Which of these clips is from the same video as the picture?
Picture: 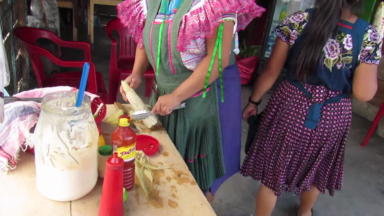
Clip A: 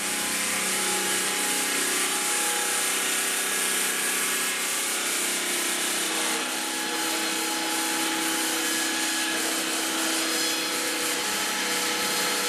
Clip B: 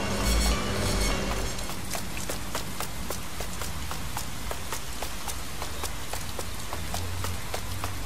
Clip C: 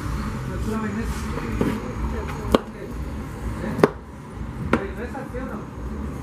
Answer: C